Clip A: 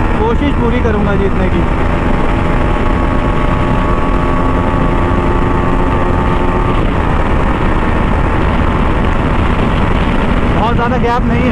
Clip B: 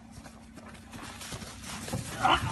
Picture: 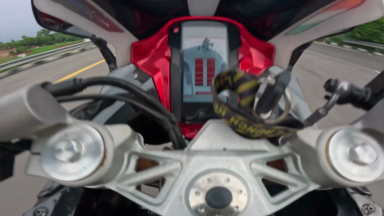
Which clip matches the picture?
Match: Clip A